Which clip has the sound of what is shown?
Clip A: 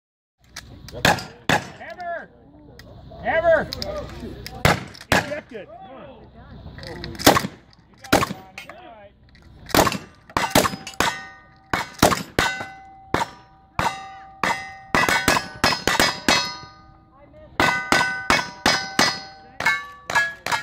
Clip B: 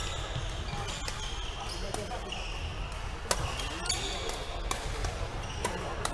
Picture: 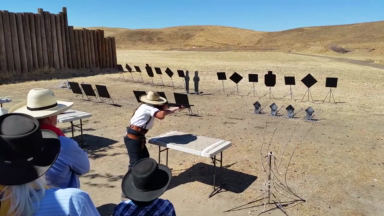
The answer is A